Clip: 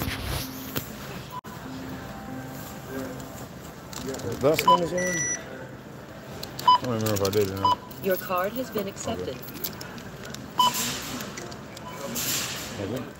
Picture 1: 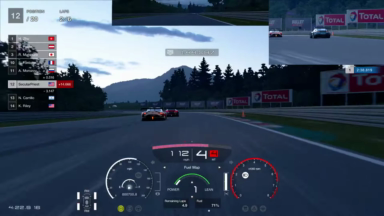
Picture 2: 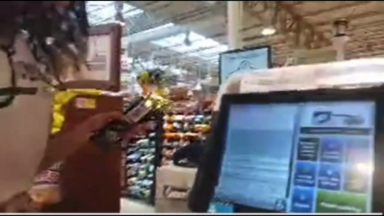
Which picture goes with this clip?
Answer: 2